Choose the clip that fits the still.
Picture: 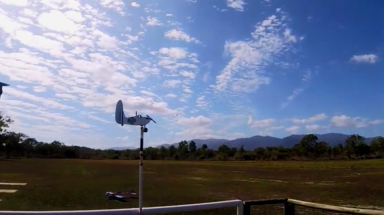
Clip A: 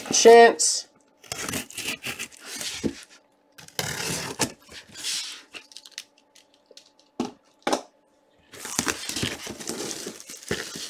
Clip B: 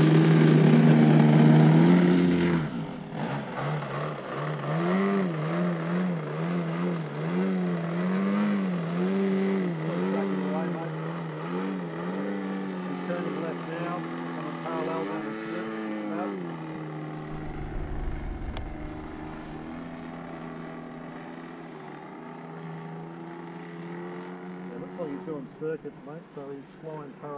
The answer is B